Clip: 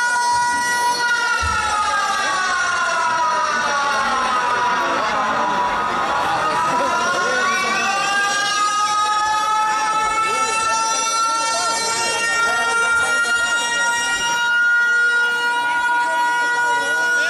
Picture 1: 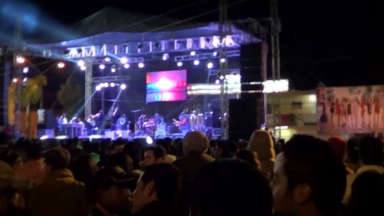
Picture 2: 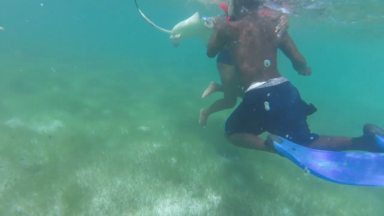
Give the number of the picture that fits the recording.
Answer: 1